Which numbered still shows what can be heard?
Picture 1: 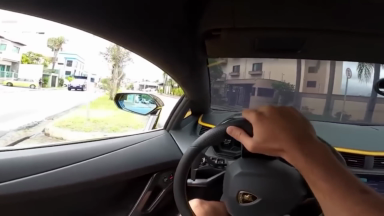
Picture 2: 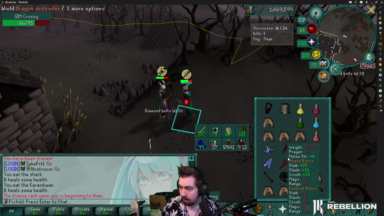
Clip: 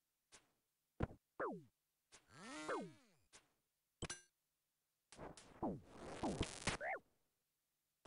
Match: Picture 2